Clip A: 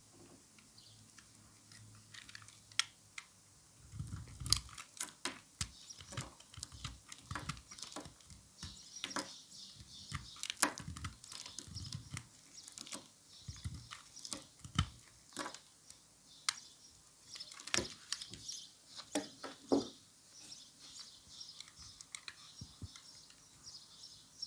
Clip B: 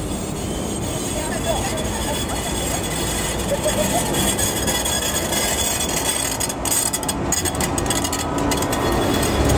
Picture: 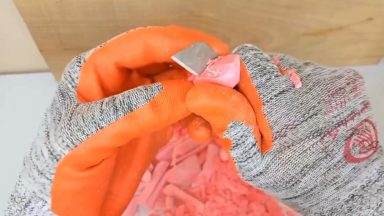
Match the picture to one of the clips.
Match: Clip A